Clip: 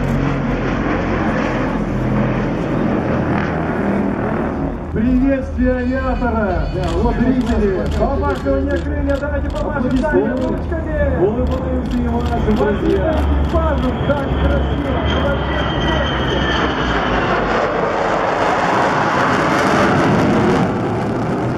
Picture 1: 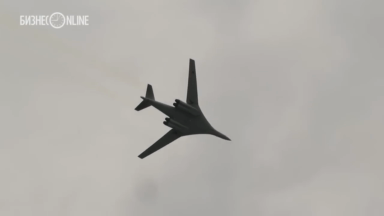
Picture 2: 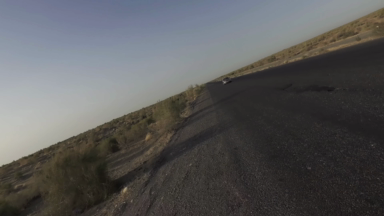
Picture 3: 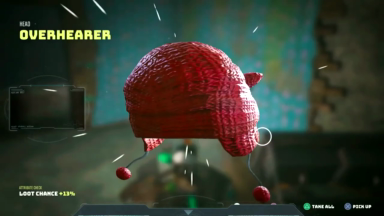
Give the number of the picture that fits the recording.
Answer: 1